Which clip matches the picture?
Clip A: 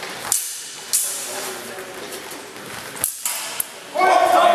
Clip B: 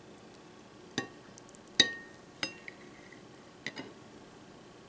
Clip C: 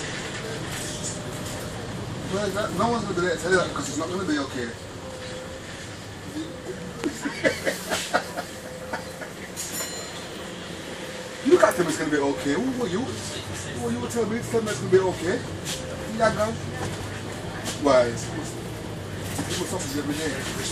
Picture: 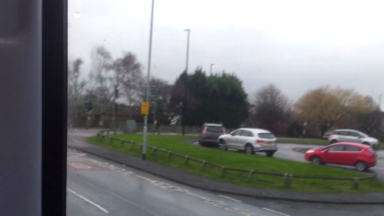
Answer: C